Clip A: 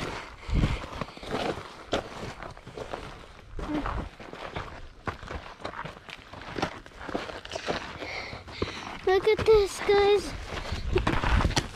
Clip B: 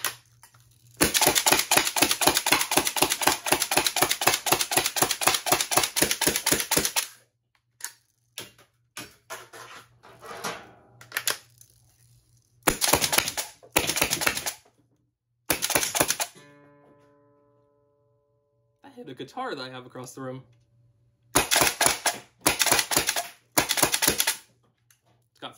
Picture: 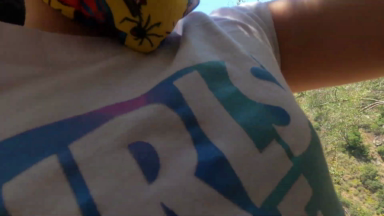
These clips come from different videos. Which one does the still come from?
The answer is A